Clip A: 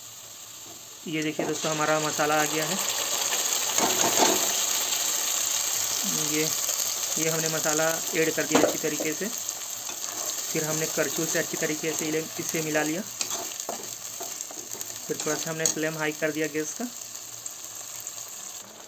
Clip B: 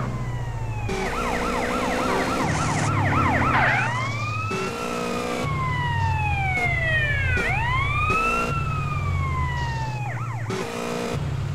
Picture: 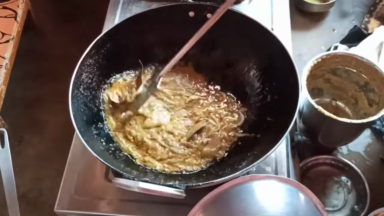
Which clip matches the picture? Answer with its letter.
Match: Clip A